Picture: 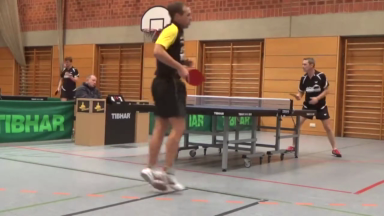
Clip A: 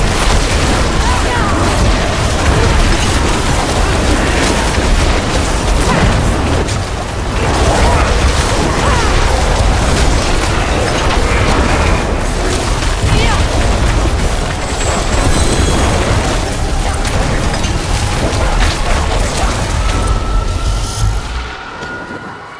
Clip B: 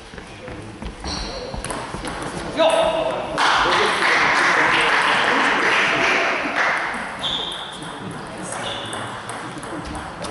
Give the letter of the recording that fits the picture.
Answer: B